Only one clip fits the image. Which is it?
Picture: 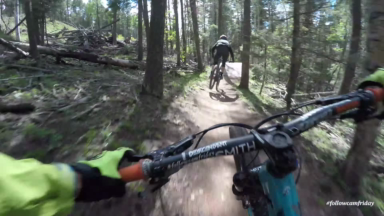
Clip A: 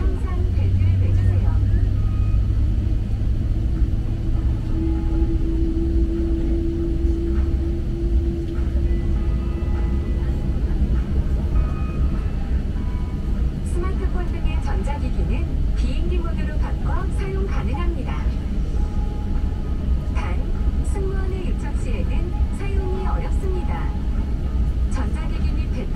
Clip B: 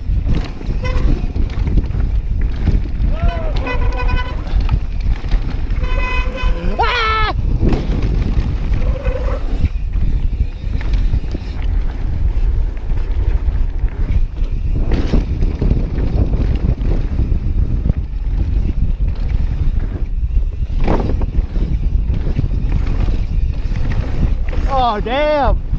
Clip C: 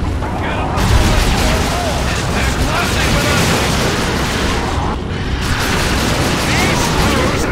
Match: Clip B